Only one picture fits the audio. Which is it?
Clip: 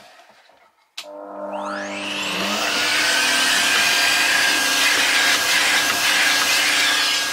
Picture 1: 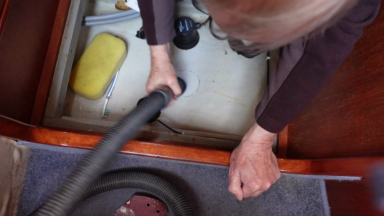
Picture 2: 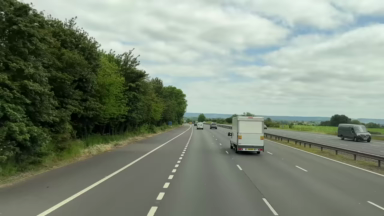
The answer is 1